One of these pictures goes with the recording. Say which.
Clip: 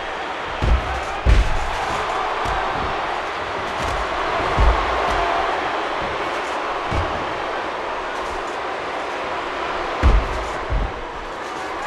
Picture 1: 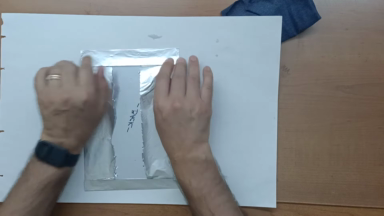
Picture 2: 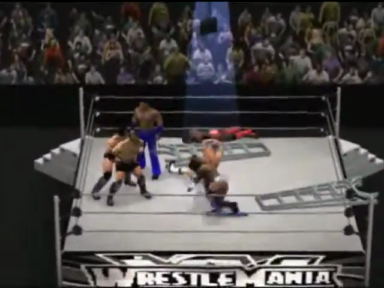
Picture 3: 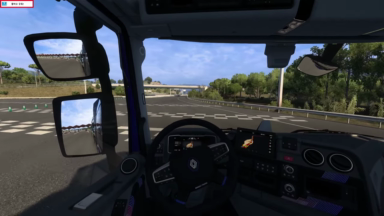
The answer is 2